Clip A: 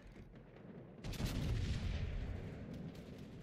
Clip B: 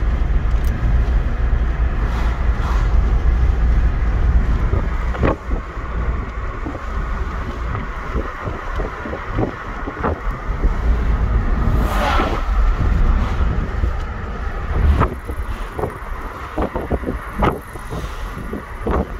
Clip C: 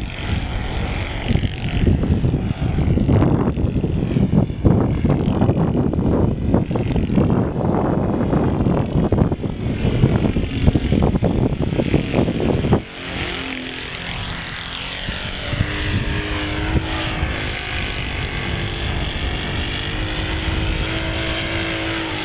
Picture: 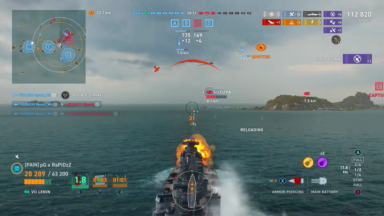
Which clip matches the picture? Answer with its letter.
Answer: A